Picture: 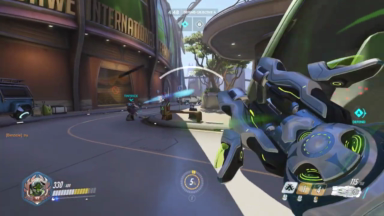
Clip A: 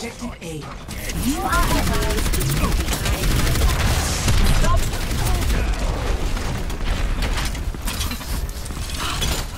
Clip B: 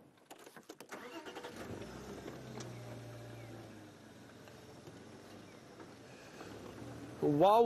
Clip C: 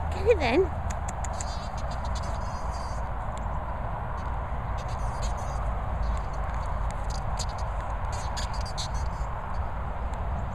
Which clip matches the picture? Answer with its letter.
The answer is A